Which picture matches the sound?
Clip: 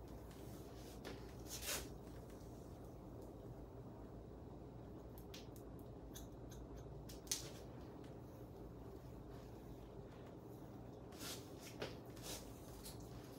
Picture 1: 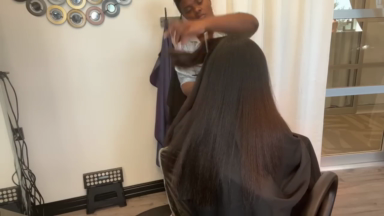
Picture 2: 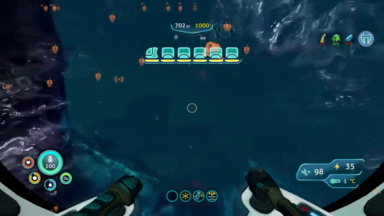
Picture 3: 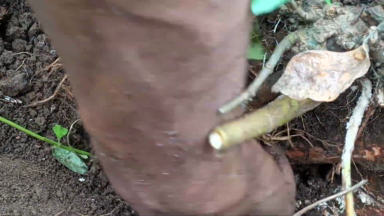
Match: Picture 1